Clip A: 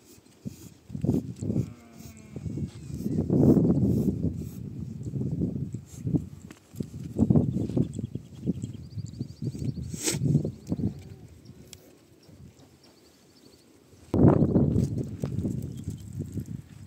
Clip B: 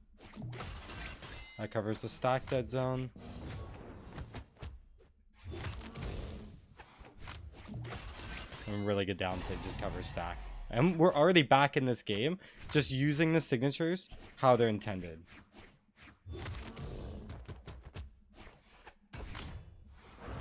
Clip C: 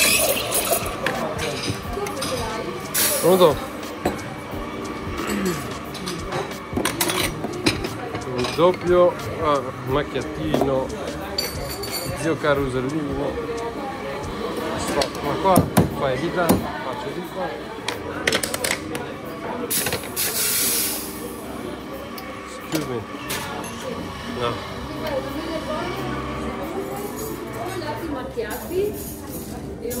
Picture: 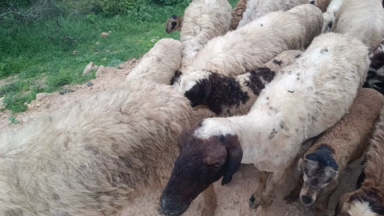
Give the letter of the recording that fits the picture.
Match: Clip A